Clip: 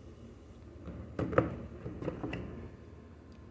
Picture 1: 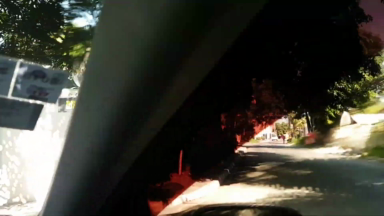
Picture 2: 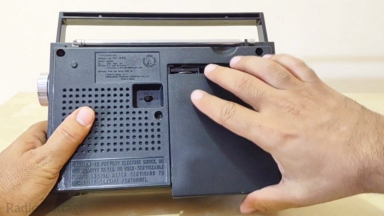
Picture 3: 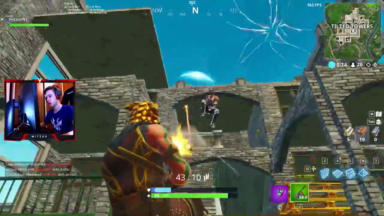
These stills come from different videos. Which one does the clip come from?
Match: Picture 2